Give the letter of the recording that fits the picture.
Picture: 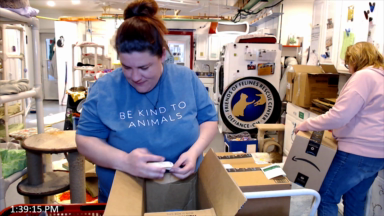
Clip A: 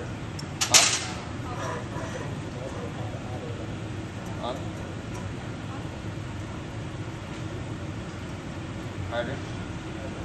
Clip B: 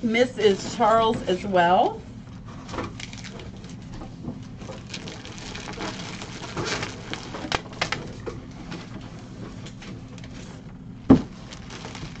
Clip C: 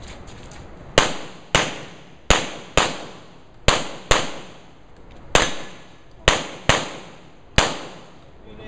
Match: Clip B